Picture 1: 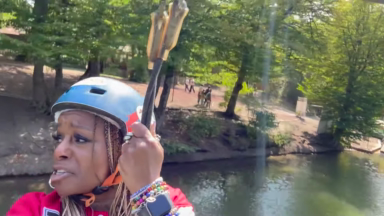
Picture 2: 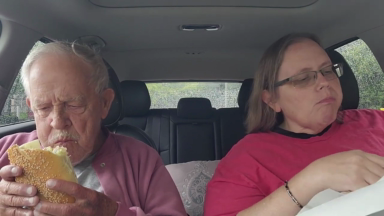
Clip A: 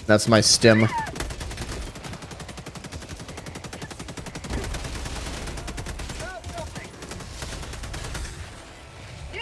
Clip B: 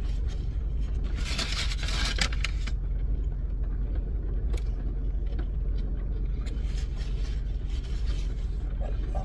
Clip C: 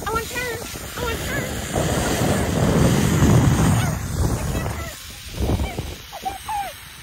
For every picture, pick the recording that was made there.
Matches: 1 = C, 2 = B